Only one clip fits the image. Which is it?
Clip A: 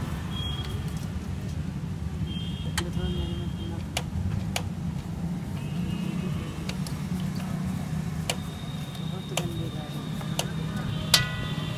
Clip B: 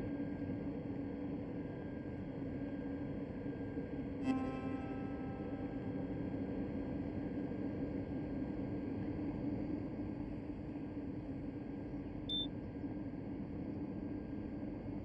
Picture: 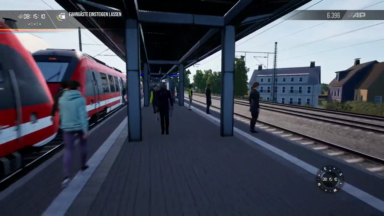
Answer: B